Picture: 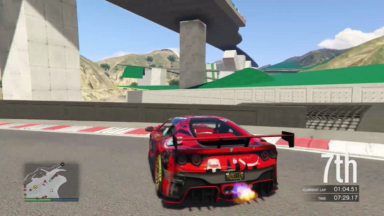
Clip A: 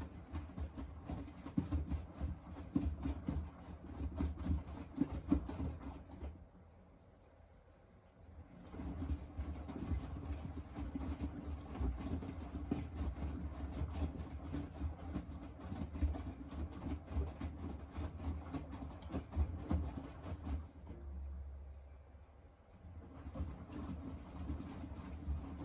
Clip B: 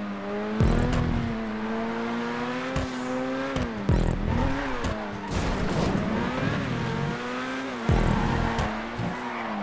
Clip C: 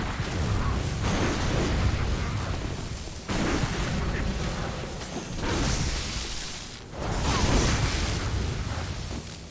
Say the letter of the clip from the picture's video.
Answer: B